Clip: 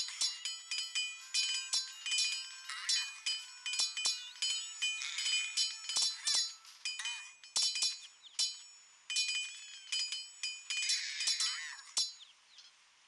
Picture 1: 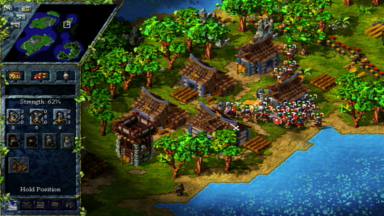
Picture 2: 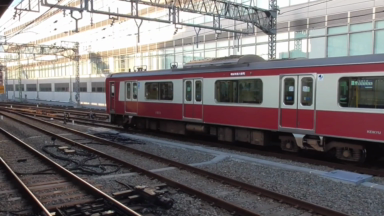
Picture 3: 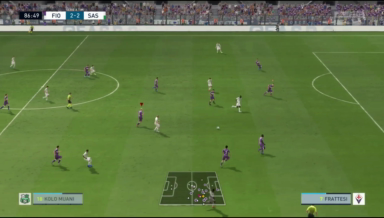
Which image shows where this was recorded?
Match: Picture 1